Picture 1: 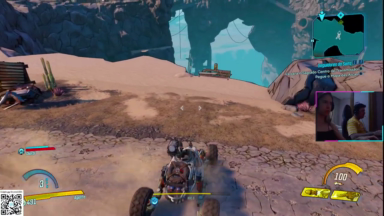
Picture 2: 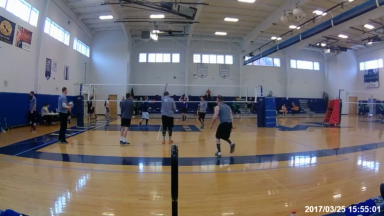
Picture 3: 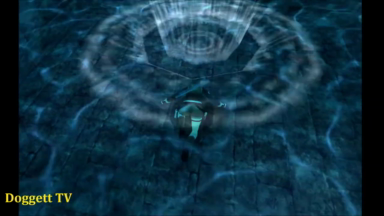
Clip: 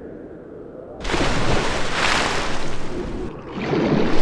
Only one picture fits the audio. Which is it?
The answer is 3